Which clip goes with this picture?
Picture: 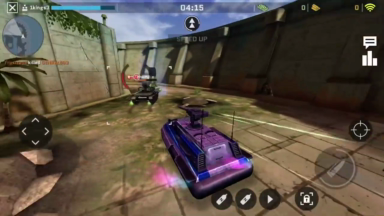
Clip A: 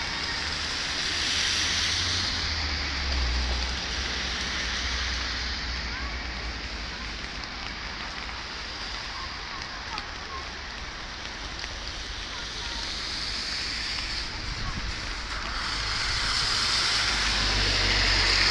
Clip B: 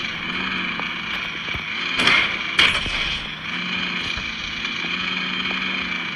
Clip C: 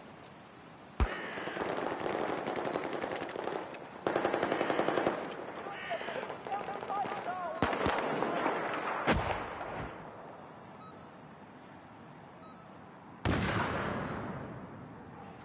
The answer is B